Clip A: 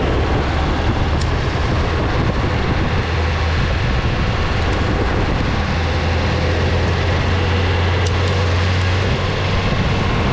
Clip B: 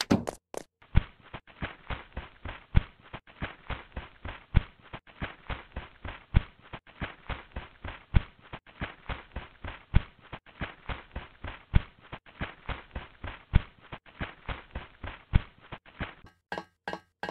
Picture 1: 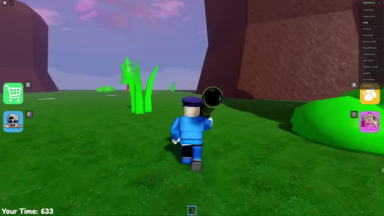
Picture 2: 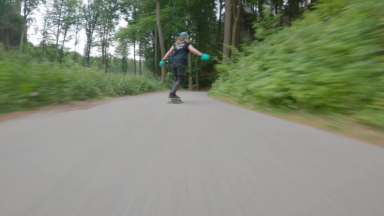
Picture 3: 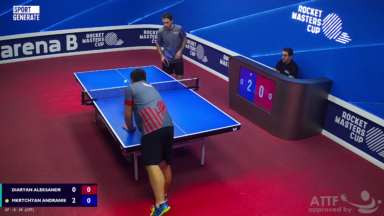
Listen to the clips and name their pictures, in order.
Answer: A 2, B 1